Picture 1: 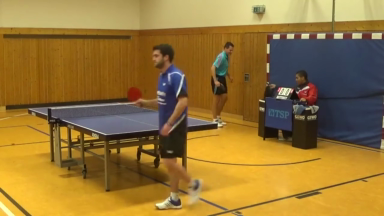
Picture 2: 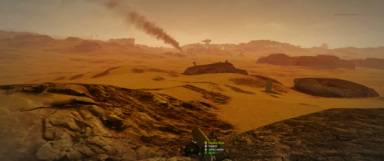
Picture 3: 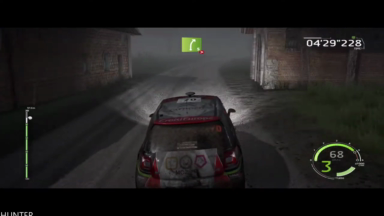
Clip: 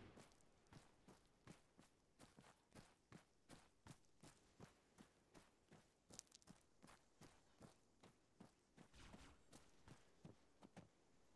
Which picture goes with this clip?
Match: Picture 2